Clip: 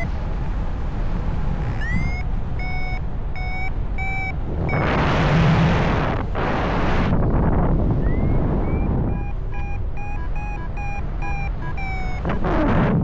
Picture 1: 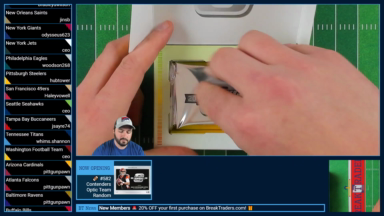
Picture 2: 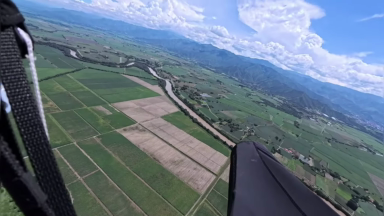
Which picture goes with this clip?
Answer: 2